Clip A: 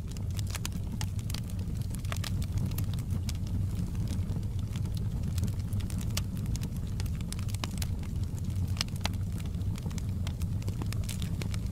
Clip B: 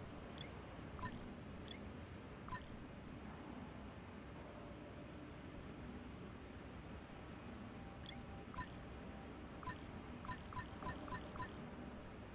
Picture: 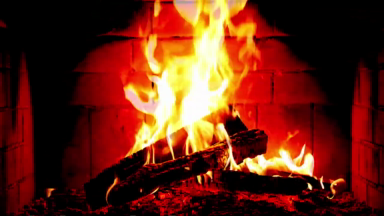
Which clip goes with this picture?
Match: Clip A